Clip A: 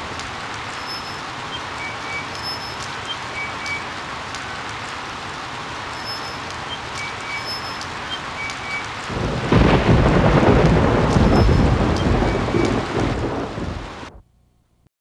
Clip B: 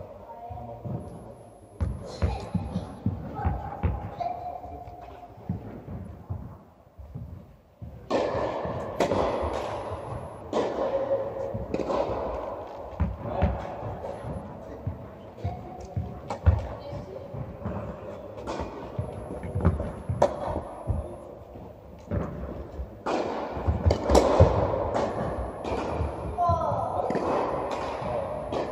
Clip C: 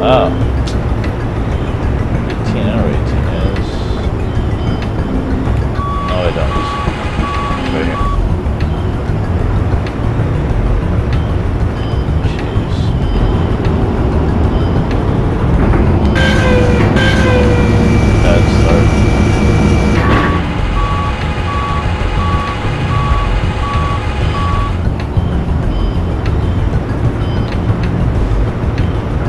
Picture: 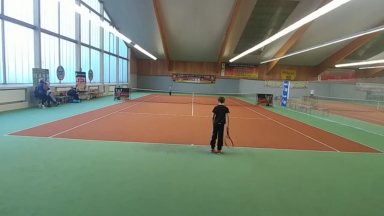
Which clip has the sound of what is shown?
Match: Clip B